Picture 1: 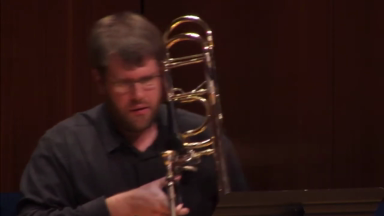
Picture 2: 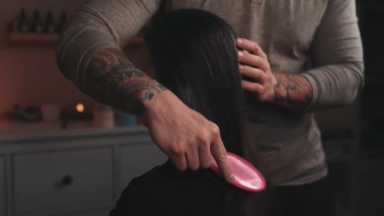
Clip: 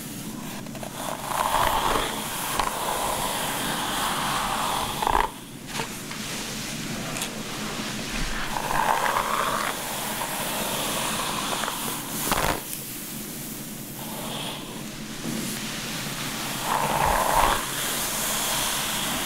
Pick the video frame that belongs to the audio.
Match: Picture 2